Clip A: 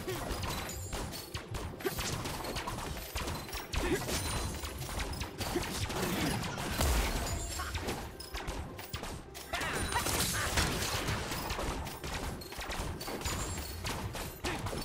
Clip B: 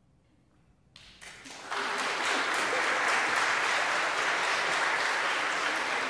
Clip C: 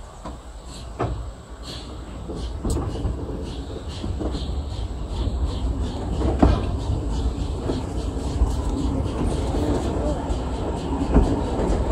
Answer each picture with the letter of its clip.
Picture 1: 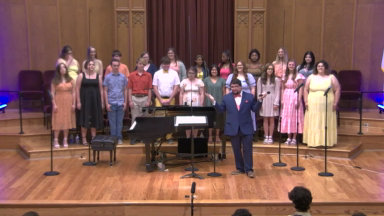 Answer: B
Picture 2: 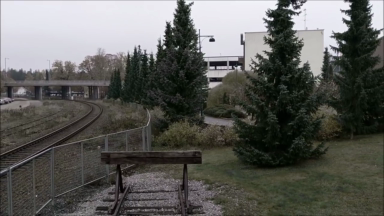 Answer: C